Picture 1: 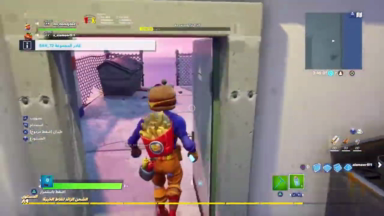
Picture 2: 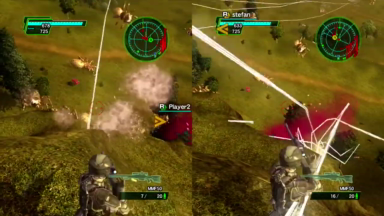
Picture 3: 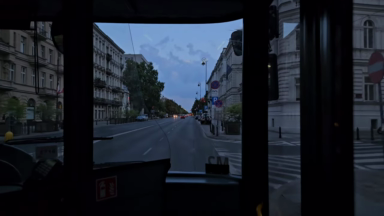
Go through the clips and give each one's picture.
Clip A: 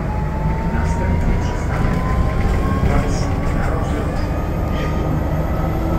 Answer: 3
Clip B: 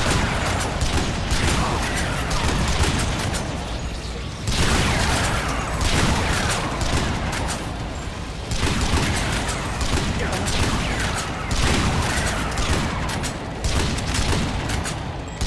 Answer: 2